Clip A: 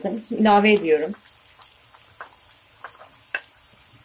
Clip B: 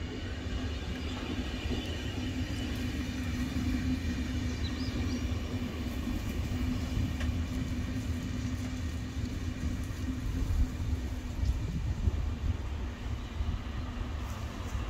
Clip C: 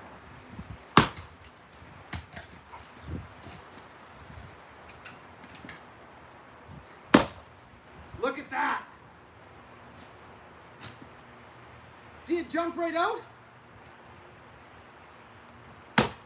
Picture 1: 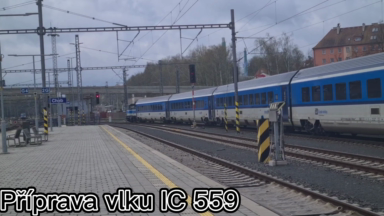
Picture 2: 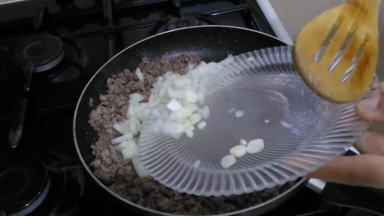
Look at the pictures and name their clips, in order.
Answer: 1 B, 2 A